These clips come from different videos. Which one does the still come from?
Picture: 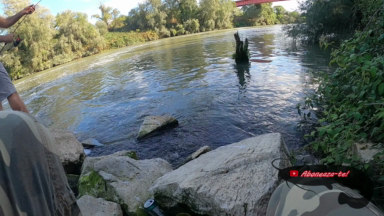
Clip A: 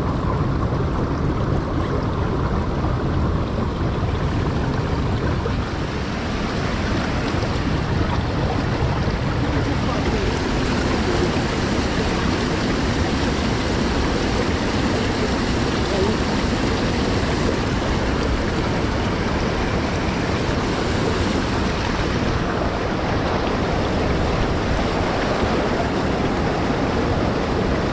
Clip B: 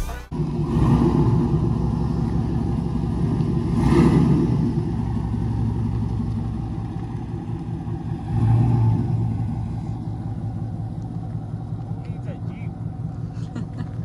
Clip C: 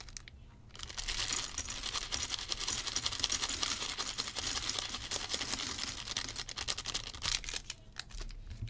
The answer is A